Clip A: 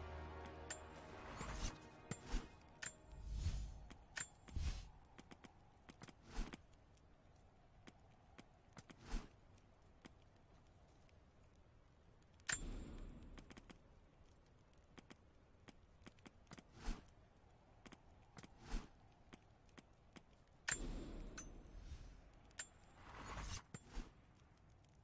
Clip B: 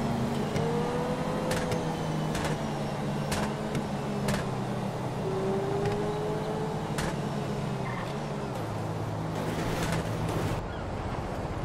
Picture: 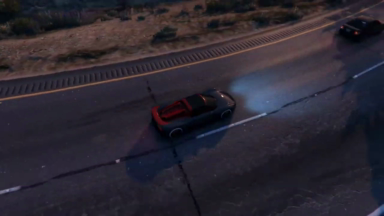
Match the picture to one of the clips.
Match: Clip B